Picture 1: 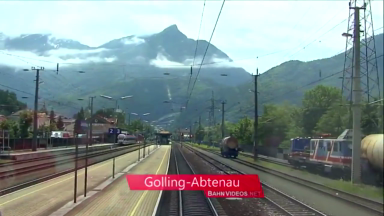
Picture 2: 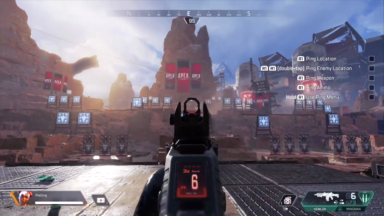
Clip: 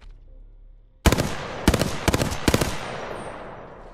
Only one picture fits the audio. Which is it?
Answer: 2